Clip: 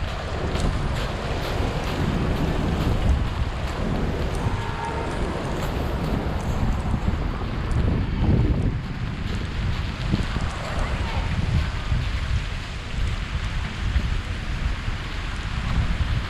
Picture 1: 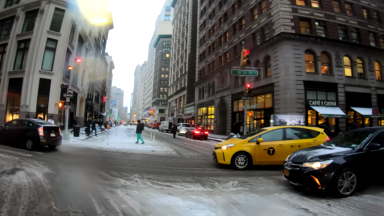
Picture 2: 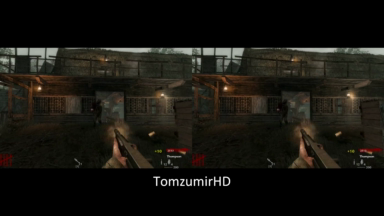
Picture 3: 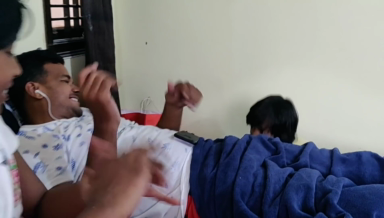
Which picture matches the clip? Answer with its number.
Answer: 1